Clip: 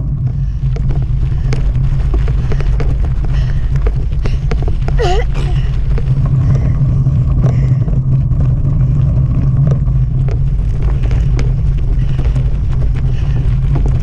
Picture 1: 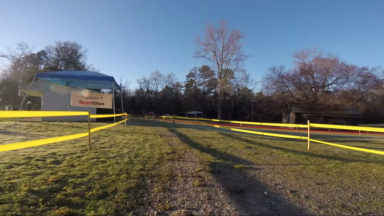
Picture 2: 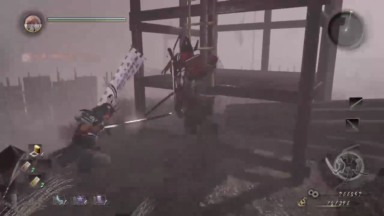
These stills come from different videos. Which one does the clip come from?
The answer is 1